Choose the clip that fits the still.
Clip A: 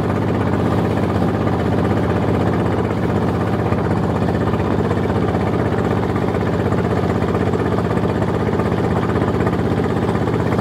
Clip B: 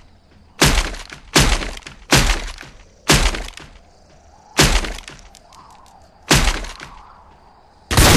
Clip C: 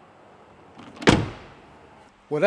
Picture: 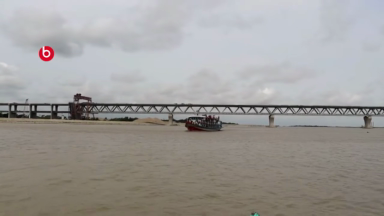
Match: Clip A